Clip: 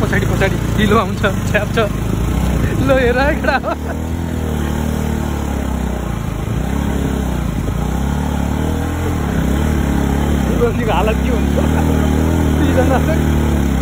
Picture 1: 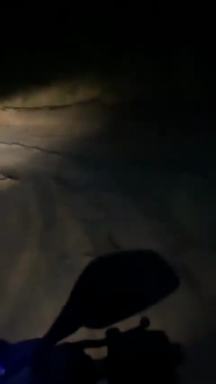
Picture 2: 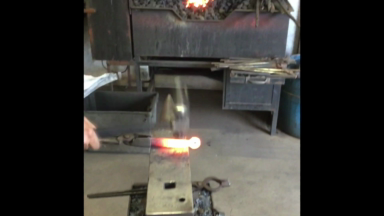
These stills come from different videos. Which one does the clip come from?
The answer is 1